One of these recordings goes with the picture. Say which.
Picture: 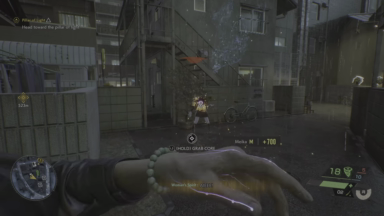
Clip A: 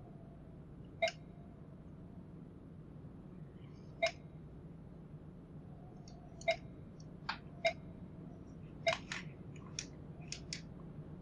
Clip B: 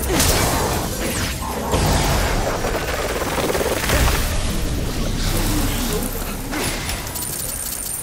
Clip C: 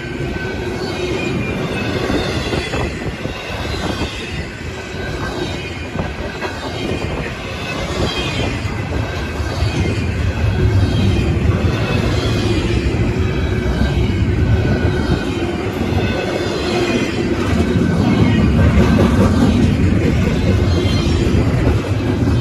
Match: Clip B